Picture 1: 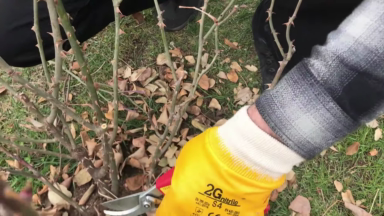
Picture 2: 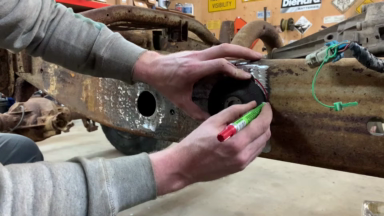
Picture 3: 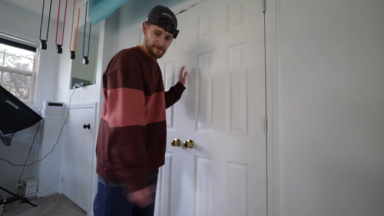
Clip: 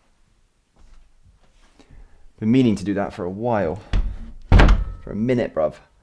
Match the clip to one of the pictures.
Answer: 3